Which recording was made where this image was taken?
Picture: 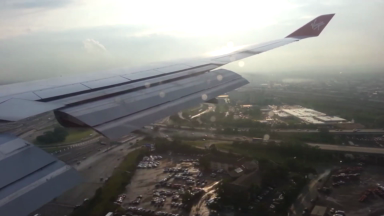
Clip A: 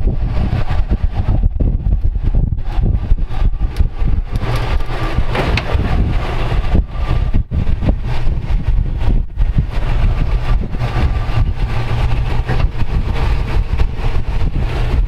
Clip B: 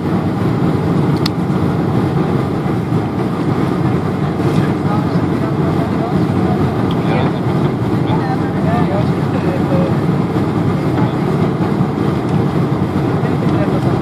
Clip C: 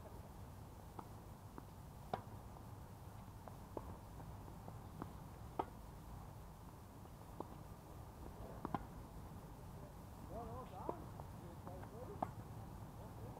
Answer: B